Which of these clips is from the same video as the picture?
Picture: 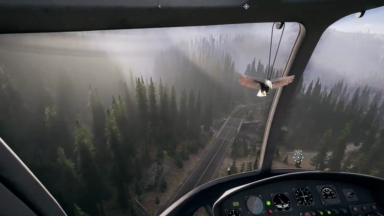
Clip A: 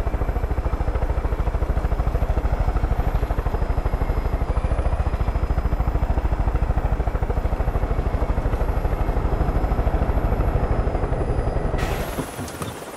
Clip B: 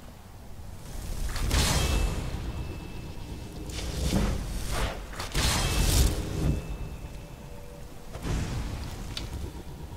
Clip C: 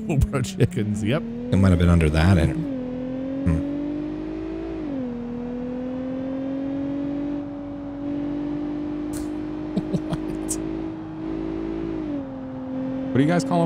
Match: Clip A